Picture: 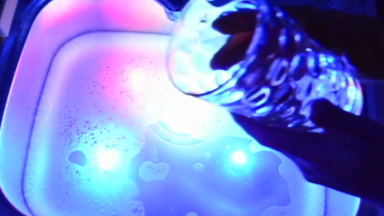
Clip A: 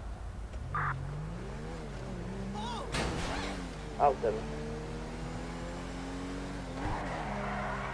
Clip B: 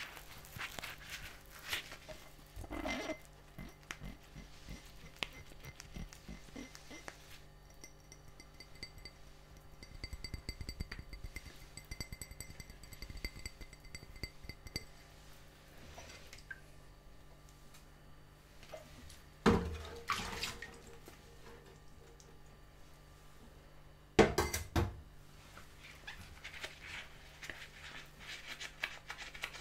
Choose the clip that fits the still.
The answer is B